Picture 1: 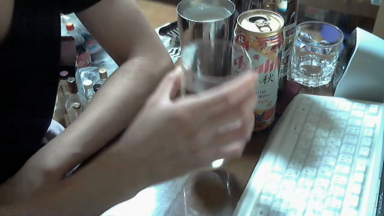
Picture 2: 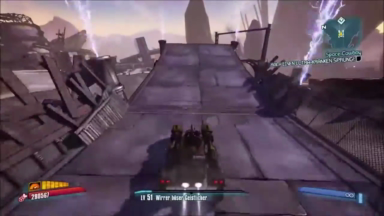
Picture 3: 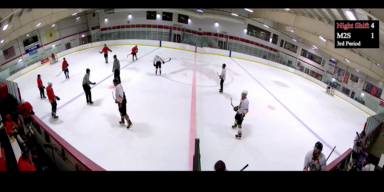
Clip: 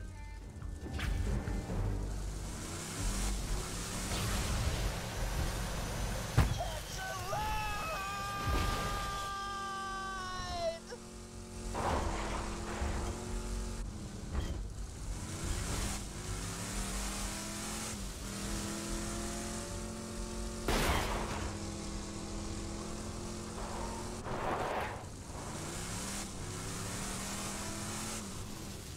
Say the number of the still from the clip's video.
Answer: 2